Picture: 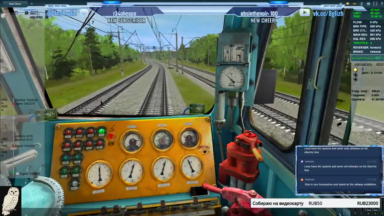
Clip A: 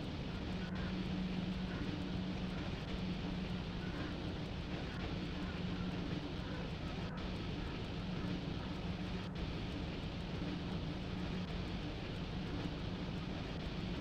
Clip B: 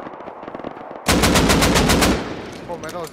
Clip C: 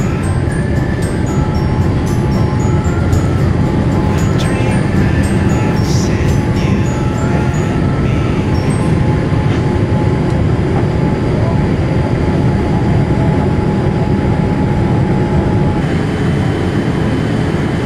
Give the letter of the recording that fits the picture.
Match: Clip A